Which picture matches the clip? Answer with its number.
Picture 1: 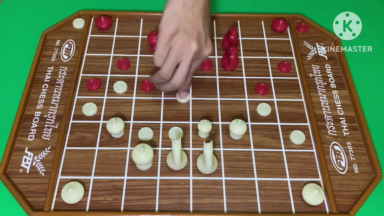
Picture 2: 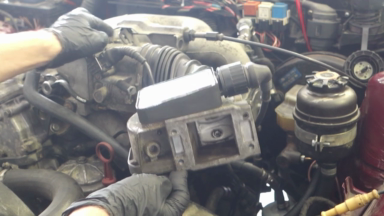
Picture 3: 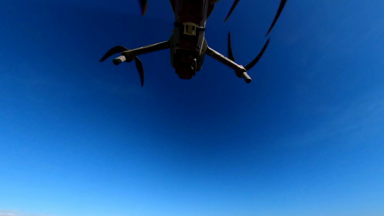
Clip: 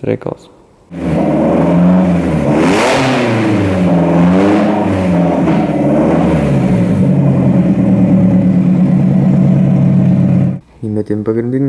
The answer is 2